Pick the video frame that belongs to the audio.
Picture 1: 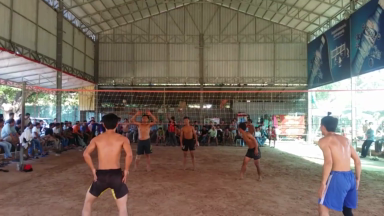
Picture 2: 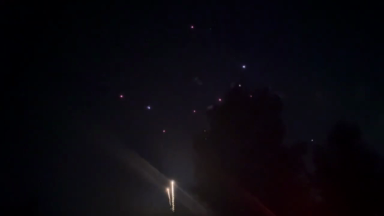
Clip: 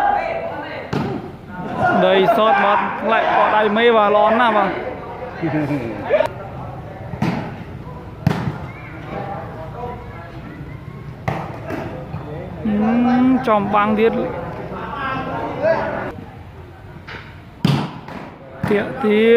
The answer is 1